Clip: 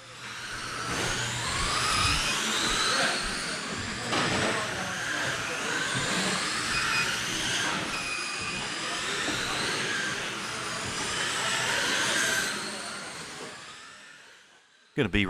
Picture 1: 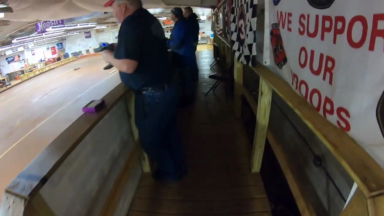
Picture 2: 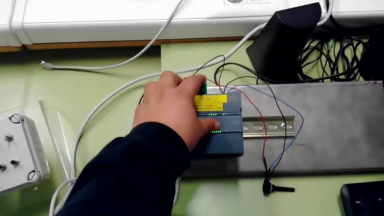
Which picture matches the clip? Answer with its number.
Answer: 1